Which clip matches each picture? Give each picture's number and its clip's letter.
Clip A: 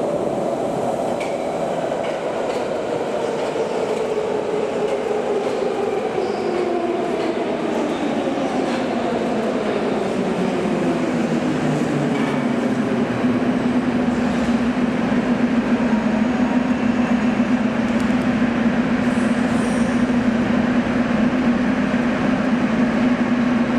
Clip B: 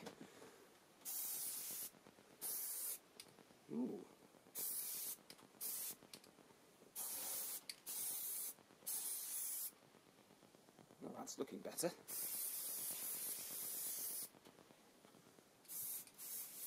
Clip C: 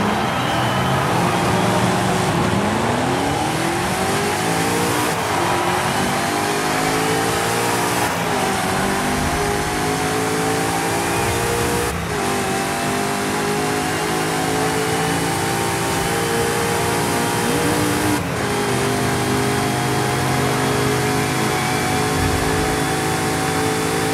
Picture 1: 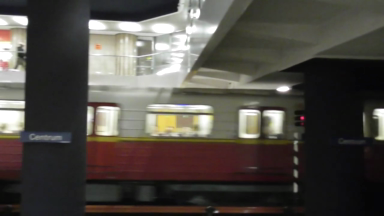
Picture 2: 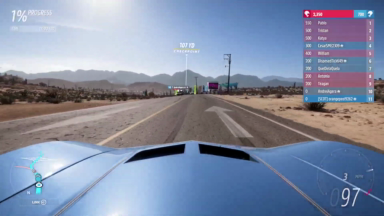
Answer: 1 A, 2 C